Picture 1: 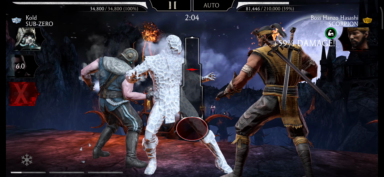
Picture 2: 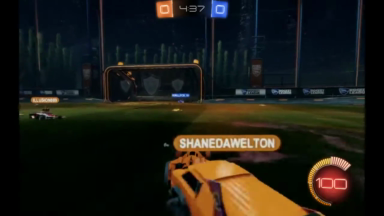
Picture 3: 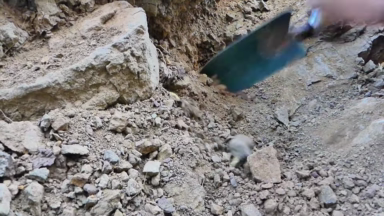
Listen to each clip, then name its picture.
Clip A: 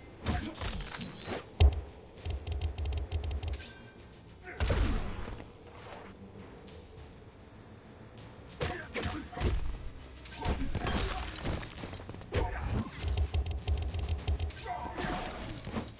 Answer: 1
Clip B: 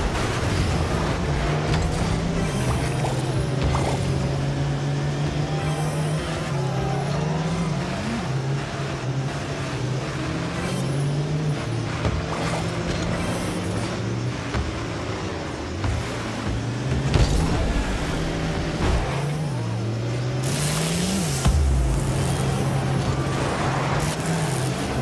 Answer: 2